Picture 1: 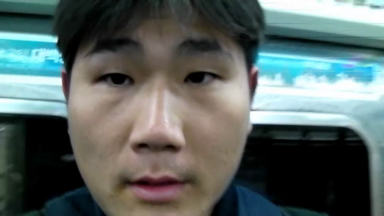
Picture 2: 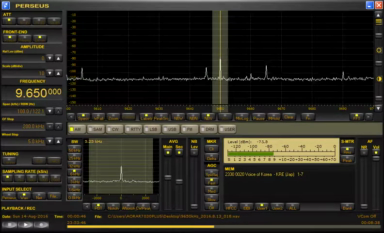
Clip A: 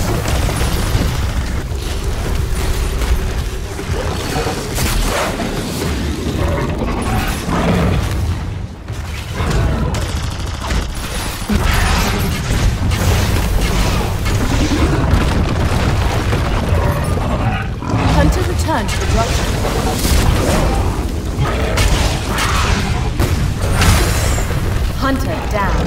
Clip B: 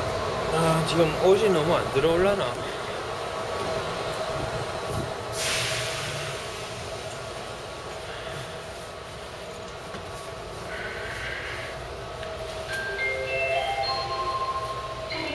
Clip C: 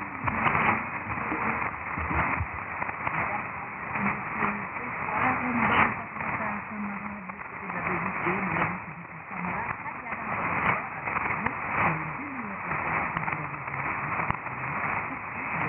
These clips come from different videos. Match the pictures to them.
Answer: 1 B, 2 C